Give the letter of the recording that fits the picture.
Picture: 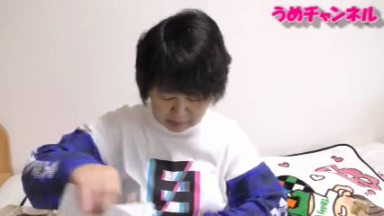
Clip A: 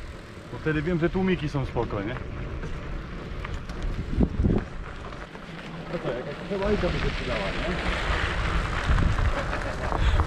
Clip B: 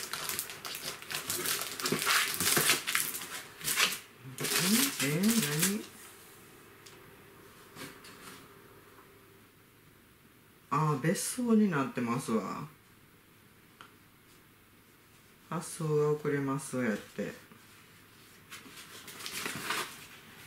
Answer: B